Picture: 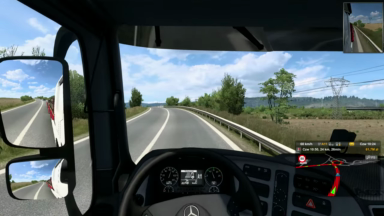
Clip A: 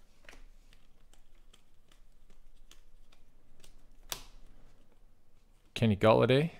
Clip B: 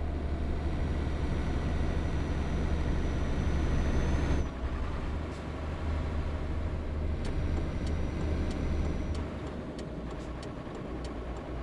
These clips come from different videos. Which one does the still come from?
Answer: B